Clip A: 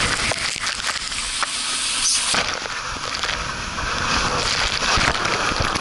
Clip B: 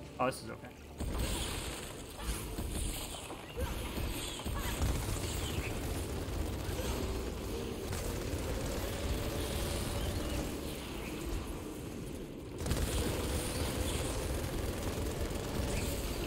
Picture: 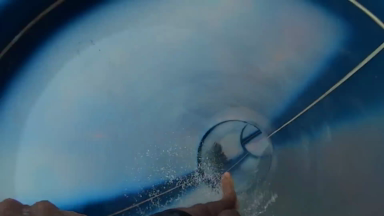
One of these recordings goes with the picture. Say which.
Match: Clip A